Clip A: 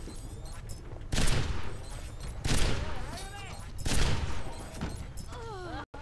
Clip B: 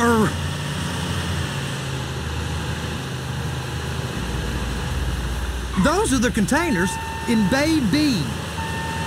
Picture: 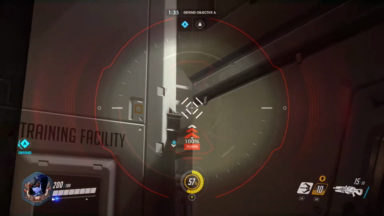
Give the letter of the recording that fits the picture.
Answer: A